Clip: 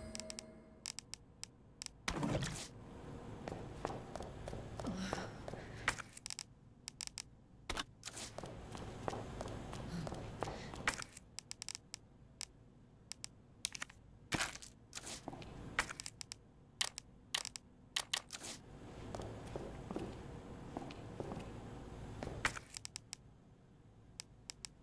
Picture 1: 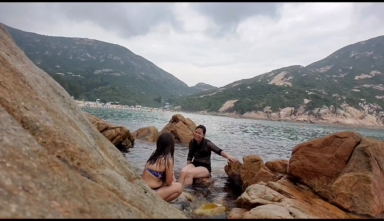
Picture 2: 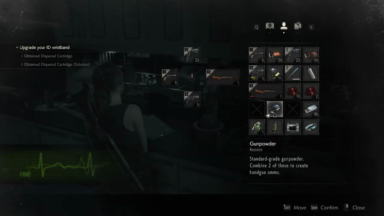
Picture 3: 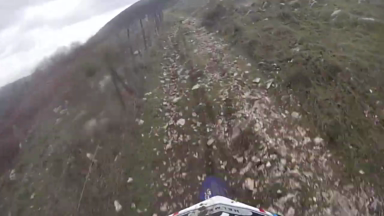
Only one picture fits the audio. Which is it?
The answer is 2